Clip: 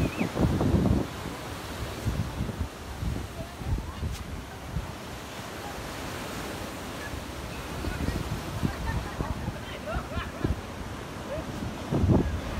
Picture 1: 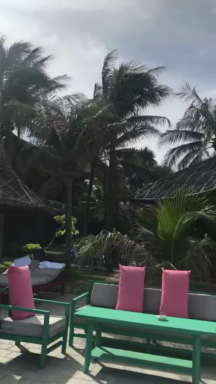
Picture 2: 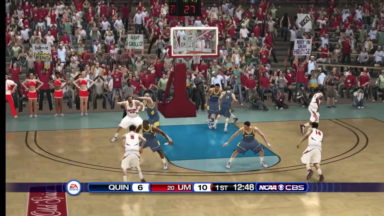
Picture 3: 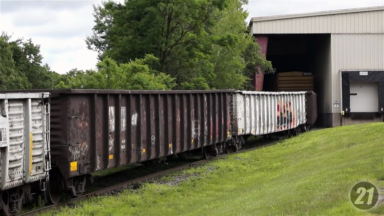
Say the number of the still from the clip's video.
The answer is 1